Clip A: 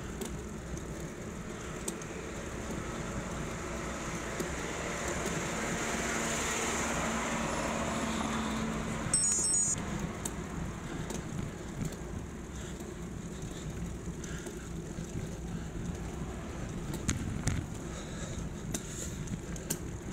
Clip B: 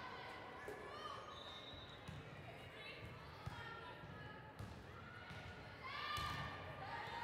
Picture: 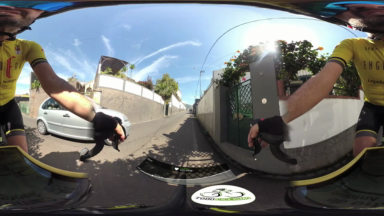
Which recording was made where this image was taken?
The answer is A